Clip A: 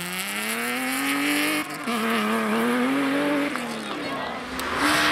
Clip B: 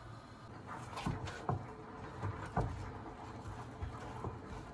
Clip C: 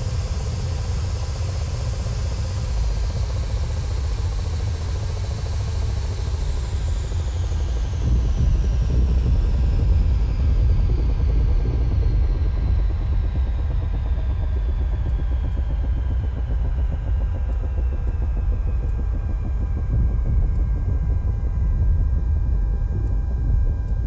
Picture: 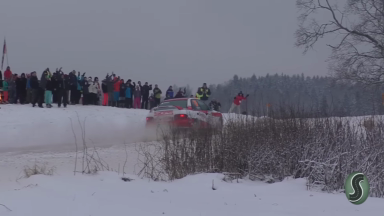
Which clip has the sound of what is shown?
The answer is A